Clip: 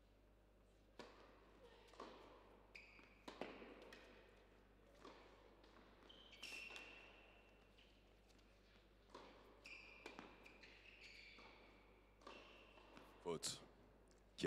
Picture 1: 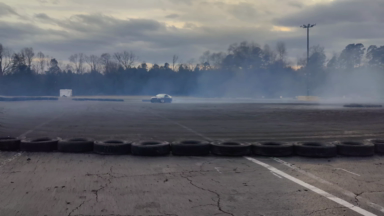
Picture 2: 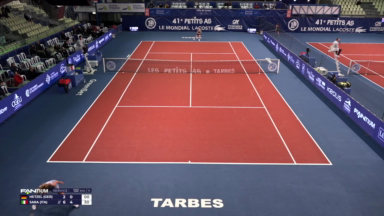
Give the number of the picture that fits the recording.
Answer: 2